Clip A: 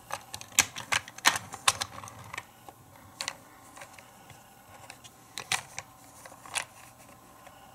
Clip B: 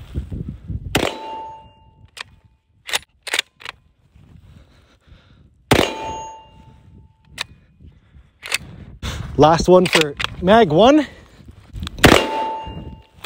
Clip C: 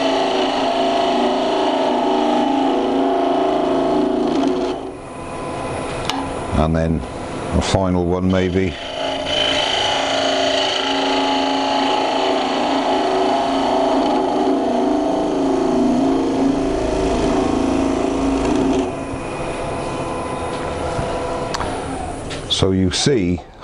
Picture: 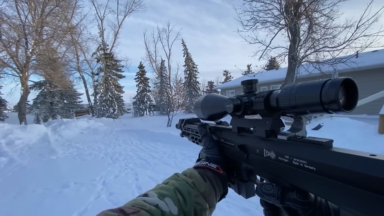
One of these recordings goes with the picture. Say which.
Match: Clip B